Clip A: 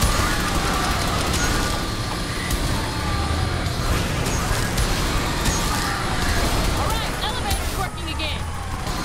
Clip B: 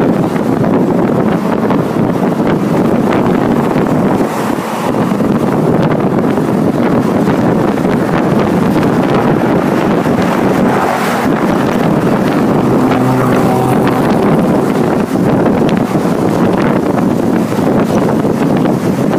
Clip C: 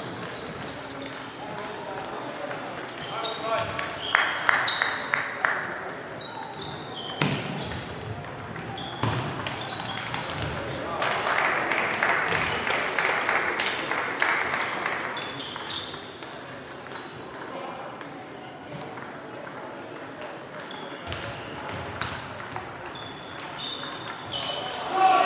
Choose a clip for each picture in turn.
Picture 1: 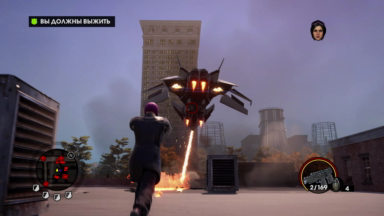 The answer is A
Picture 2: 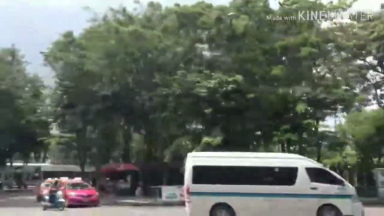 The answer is B